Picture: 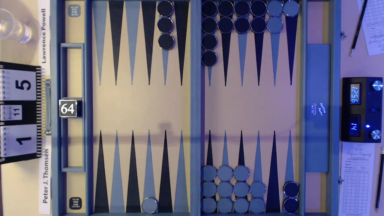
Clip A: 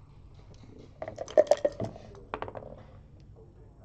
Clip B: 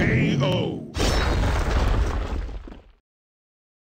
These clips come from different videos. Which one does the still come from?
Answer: A